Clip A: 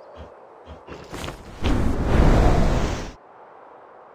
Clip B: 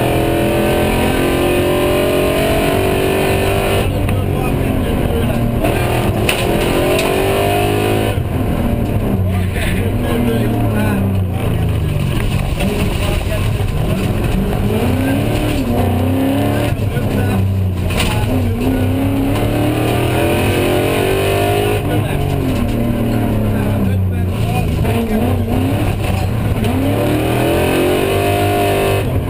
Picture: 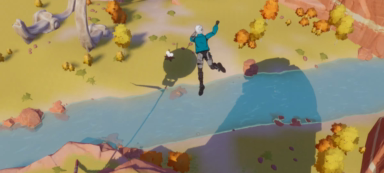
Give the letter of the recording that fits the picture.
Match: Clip A